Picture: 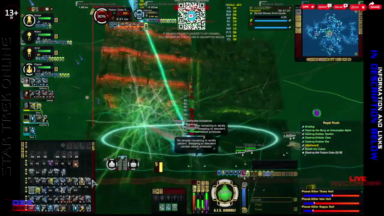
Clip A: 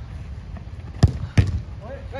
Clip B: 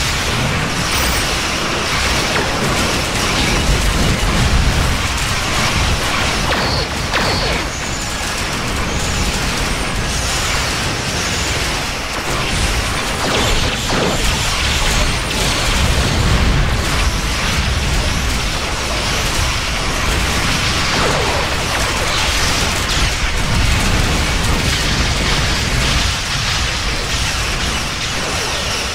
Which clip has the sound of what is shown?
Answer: B